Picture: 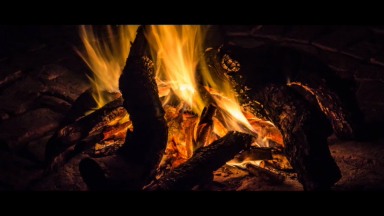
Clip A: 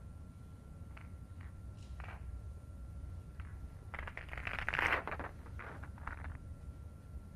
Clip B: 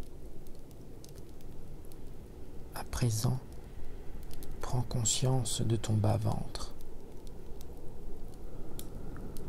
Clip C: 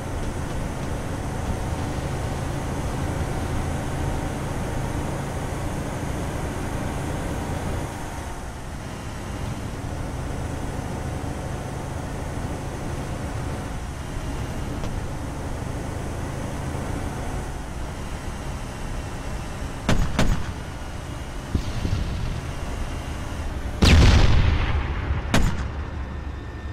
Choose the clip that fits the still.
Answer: B